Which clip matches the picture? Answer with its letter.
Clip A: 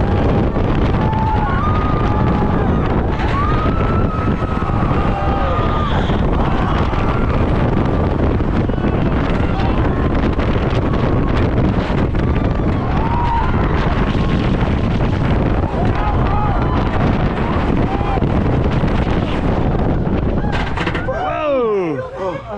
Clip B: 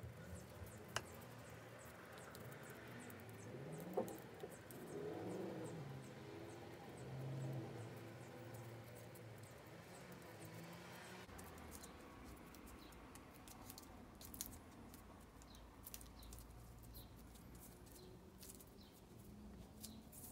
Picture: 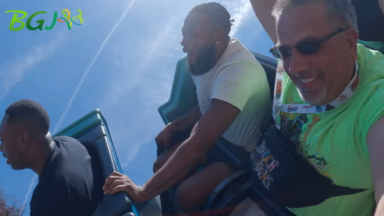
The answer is A